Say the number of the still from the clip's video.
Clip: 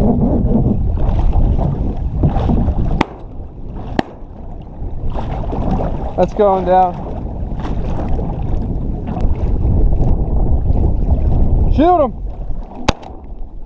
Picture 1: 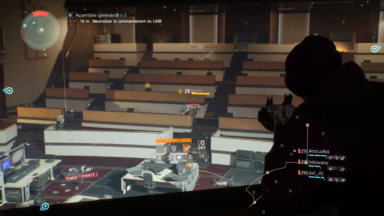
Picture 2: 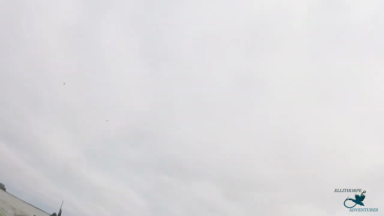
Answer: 2